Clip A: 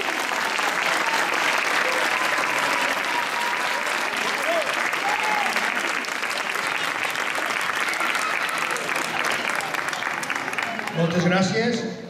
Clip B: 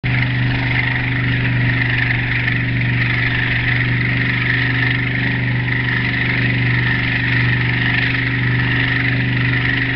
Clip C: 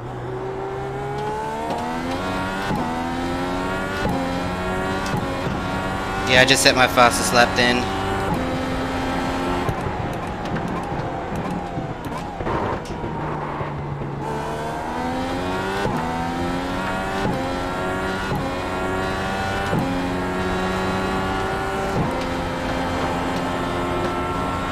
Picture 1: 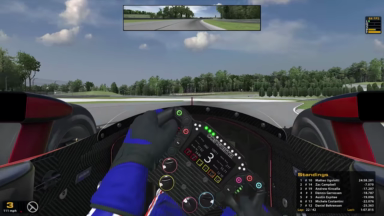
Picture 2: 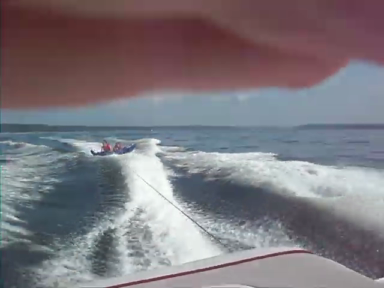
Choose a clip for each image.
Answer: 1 C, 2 B